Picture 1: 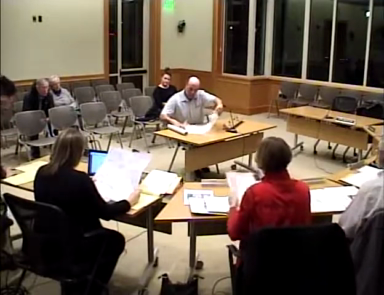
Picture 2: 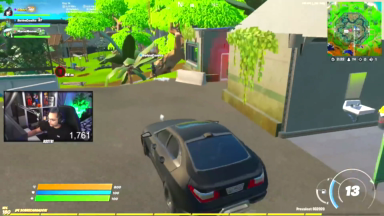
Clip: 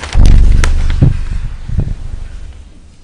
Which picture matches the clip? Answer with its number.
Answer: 1